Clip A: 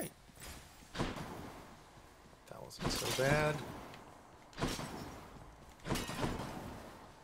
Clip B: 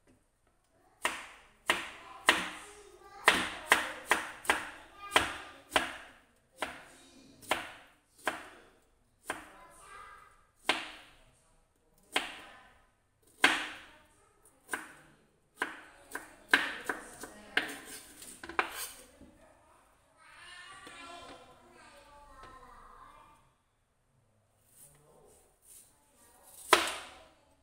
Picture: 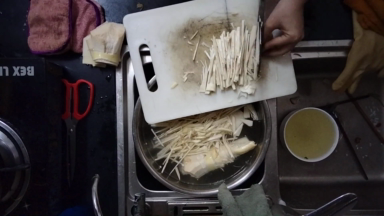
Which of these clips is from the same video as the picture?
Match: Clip B